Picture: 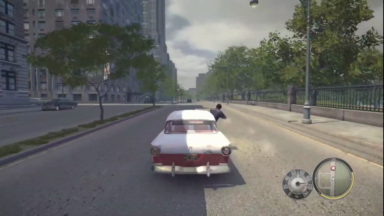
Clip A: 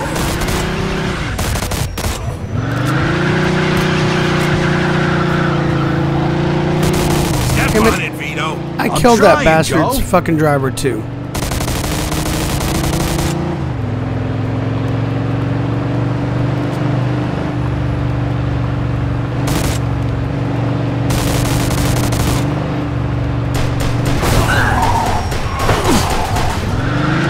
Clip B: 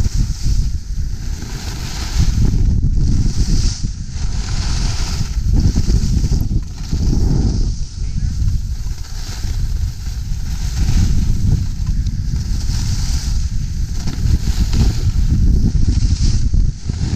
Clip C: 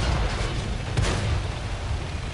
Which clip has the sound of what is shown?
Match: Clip A